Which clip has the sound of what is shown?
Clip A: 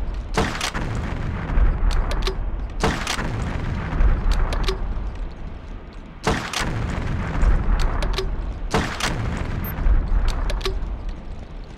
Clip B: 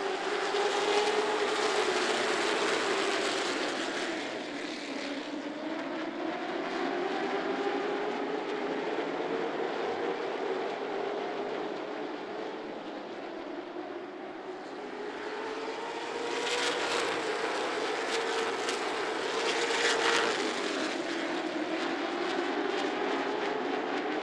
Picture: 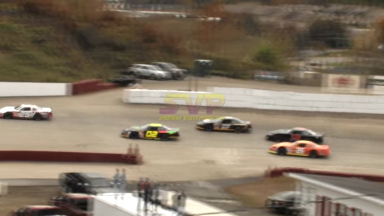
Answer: B